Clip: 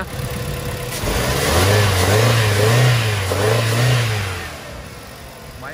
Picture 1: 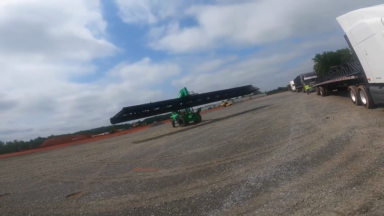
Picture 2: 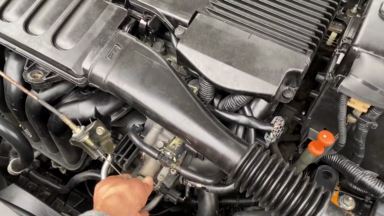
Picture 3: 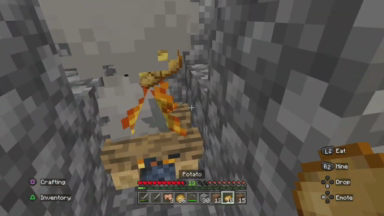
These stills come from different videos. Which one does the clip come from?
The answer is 2